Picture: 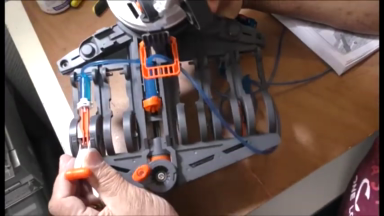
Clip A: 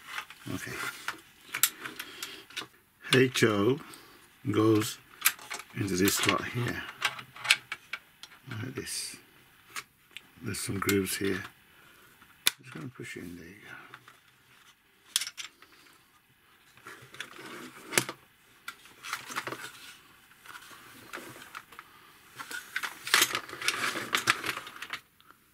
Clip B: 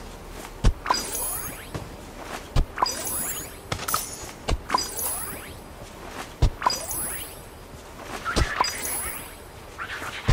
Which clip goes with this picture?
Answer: A